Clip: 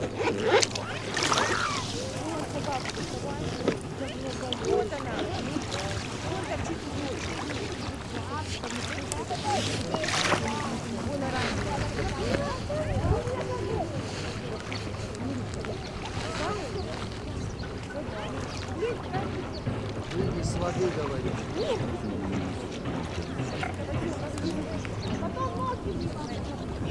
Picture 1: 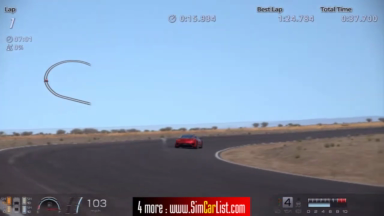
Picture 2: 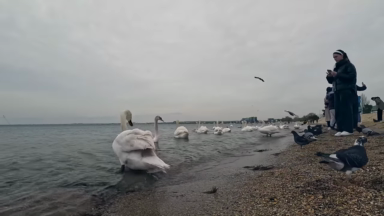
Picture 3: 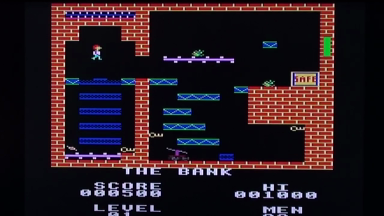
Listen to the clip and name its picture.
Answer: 2